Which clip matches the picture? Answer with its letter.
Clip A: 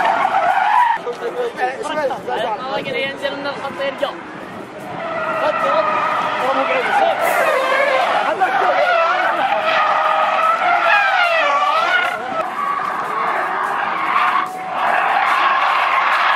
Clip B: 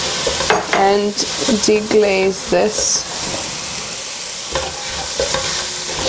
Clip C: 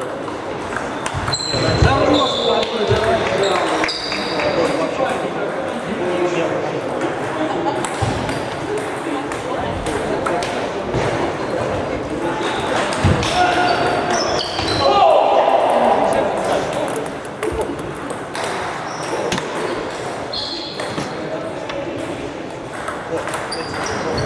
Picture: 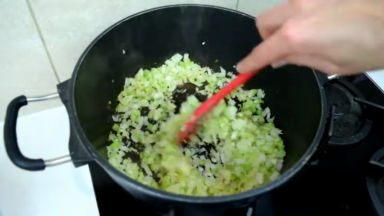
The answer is B